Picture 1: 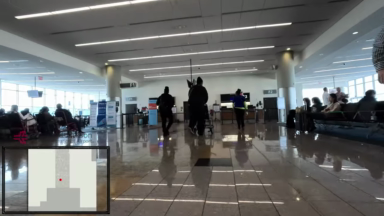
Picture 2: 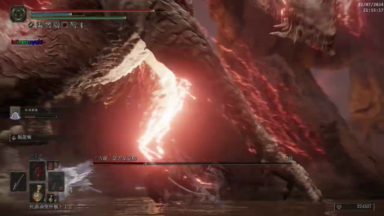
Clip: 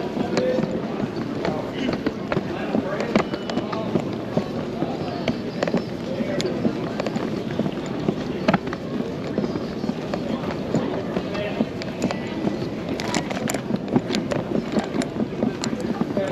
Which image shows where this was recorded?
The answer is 1